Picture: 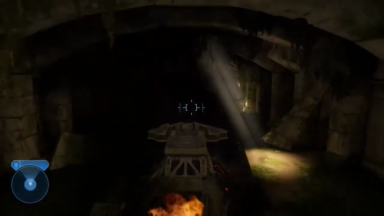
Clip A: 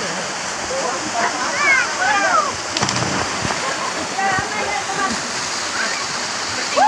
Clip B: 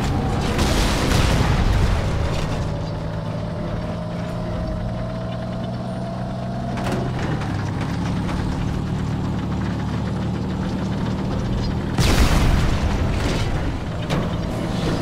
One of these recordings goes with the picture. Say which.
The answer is B